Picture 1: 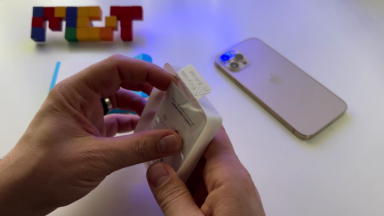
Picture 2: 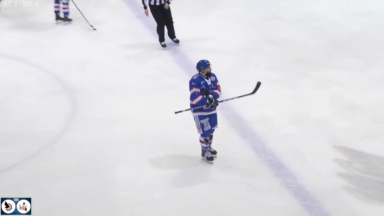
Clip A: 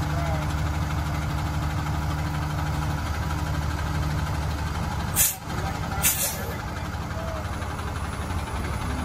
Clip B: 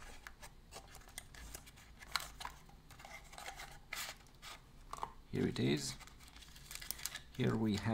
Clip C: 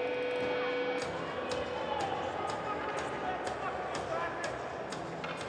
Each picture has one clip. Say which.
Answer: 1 B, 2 C